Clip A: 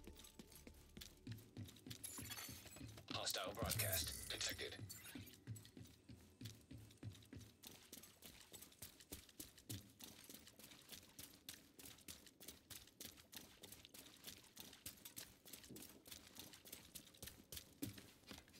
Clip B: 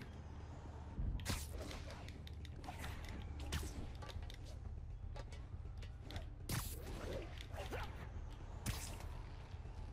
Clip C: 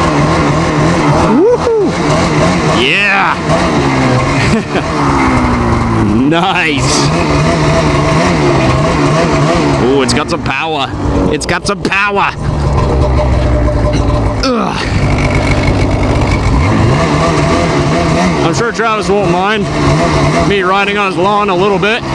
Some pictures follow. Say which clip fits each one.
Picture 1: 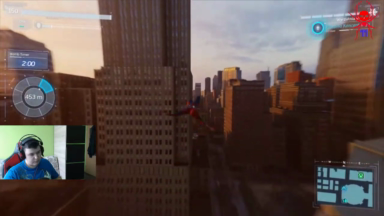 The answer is B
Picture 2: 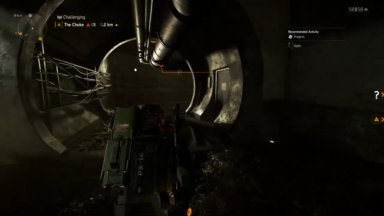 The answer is A